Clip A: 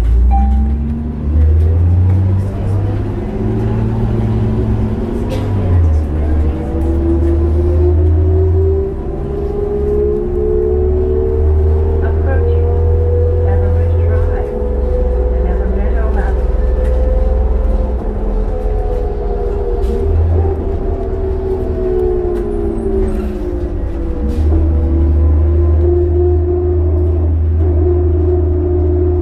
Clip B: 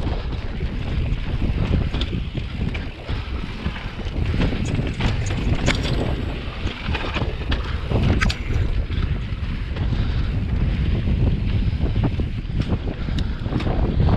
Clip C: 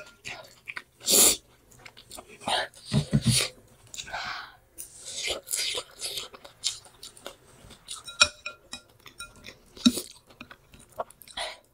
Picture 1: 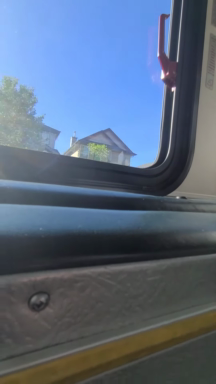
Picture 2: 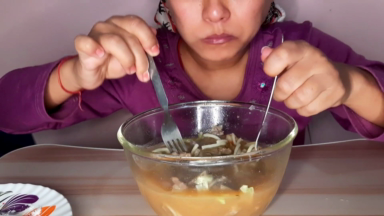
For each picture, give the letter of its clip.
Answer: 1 A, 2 C